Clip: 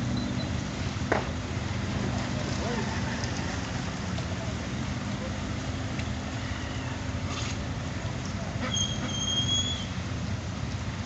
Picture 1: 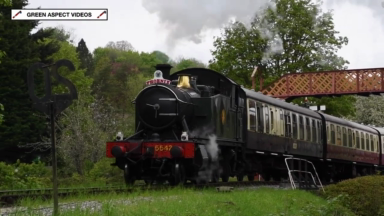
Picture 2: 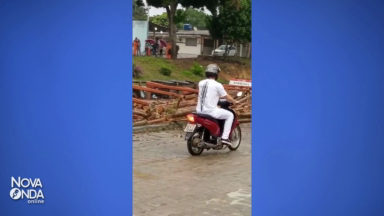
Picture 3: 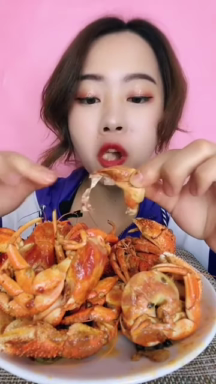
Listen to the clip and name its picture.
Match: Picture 2